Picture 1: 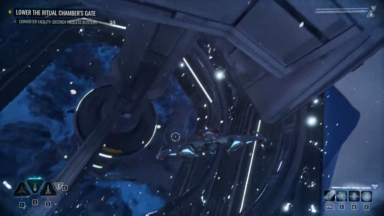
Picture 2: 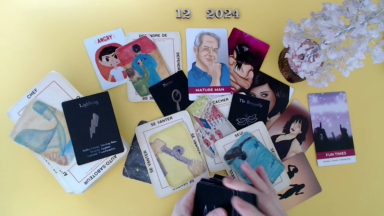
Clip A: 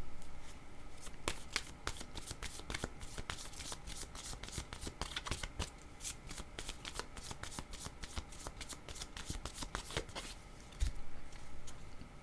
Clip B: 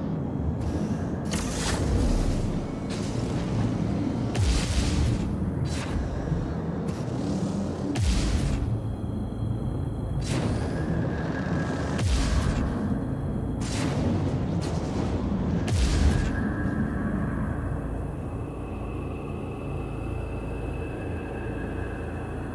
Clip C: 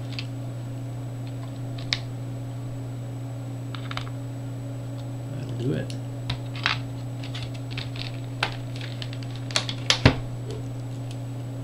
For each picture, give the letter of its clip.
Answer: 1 B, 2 A